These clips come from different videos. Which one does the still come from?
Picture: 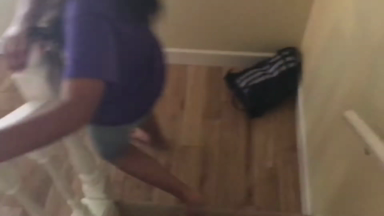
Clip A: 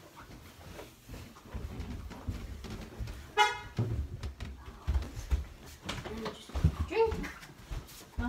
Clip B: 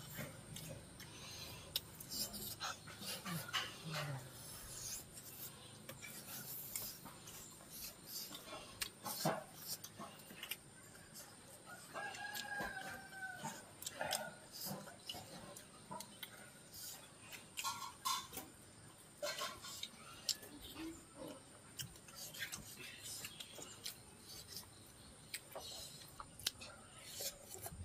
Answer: A